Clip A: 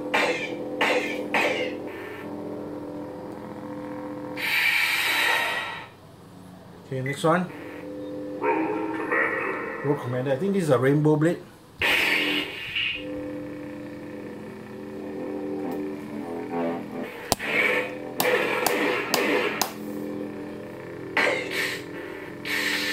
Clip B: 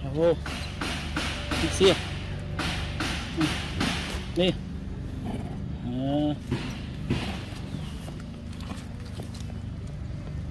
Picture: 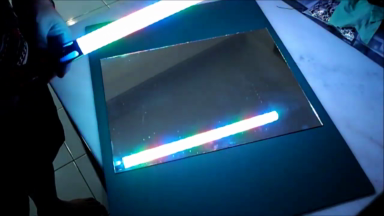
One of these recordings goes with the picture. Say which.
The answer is A